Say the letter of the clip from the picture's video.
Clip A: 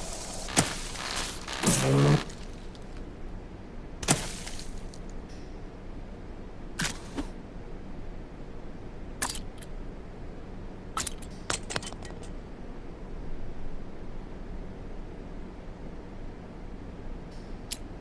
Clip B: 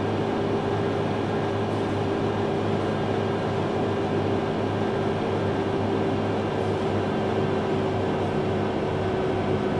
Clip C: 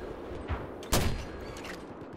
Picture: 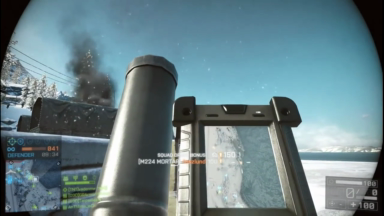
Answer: C